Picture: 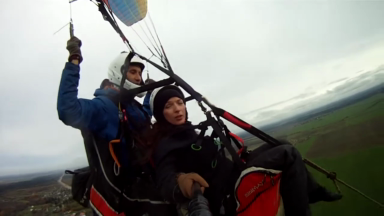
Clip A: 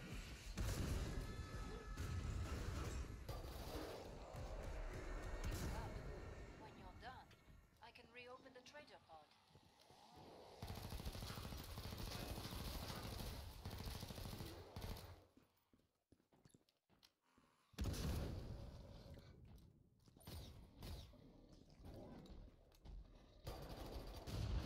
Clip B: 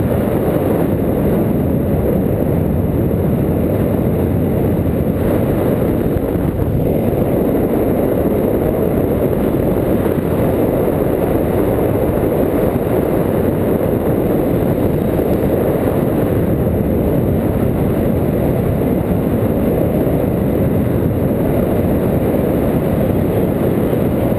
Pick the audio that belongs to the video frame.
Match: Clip B